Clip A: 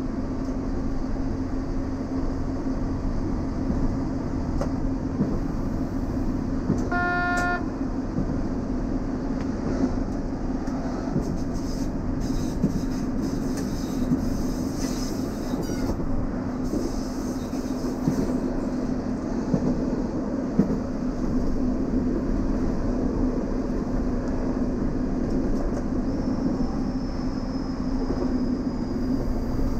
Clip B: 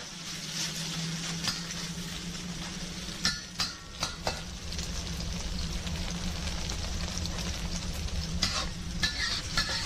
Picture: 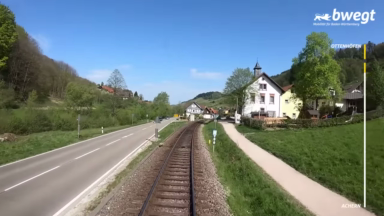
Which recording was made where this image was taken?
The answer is A